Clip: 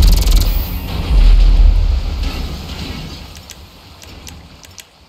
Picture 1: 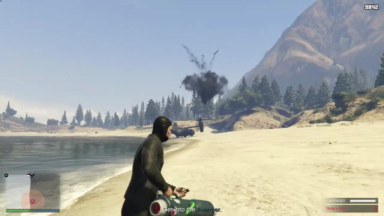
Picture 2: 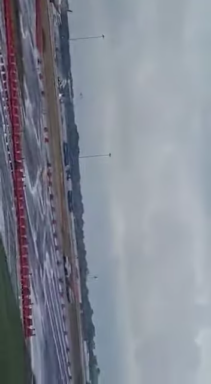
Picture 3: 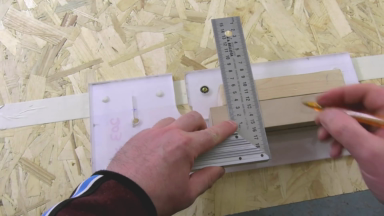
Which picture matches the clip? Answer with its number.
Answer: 1